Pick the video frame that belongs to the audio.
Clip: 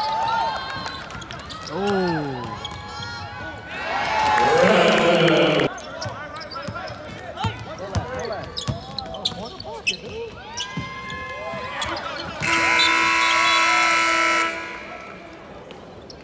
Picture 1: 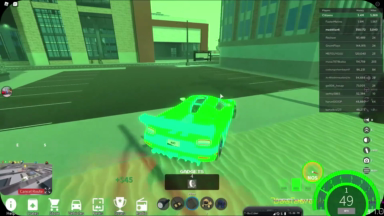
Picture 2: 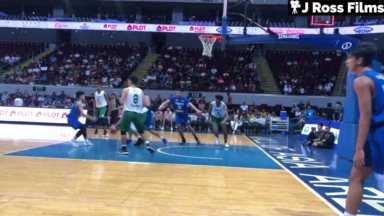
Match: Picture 2